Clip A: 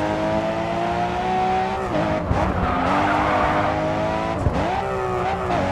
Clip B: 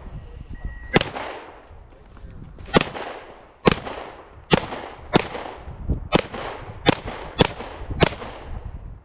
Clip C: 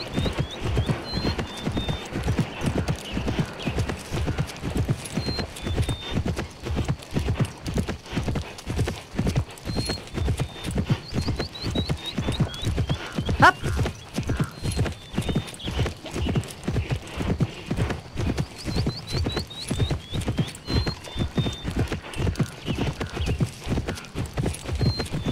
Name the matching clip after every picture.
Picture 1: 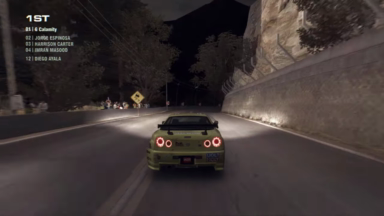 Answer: A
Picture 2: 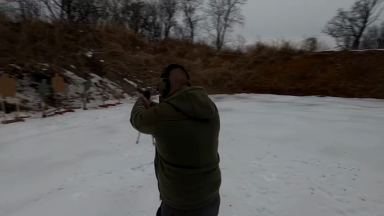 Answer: B